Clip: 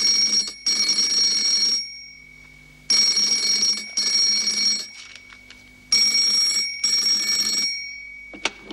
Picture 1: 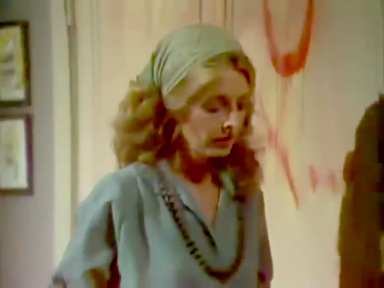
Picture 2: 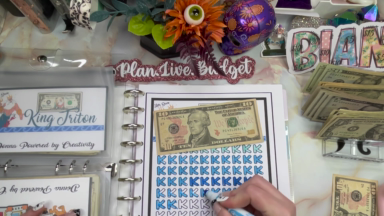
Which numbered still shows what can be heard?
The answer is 1